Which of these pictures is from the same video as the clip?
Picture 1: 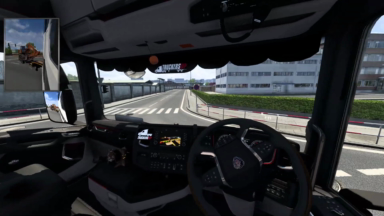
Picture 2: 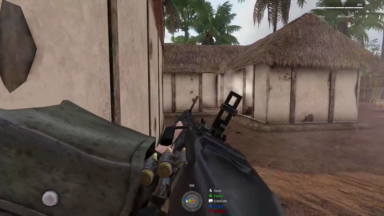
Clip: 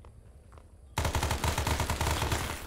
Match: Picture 2